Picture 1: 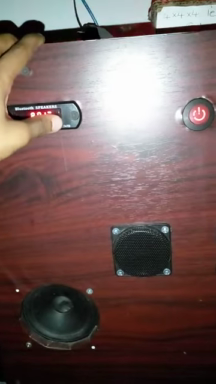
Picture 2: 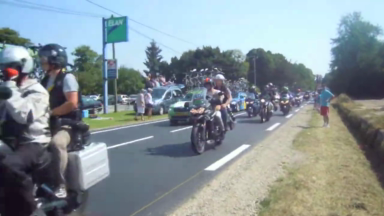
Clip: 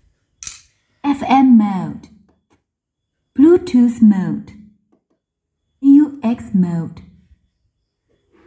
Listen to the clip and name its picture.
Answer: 1